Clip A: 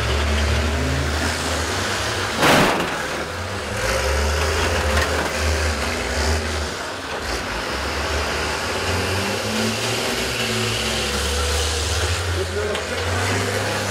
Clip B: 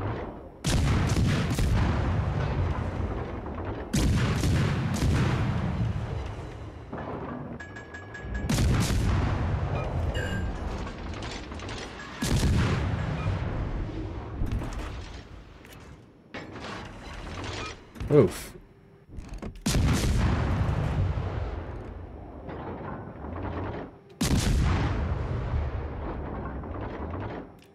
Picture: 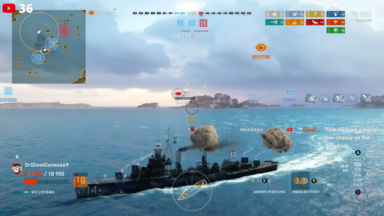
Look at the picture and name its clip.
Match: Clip B